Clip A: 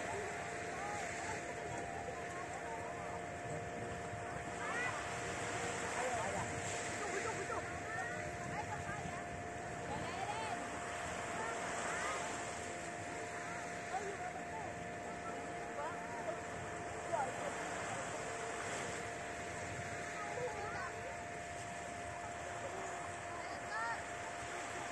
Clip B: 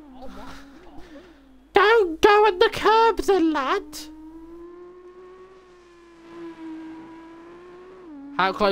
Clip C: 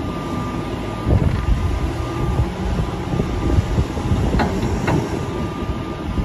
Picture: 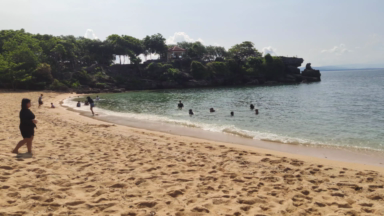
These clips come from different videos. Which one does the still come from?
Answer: A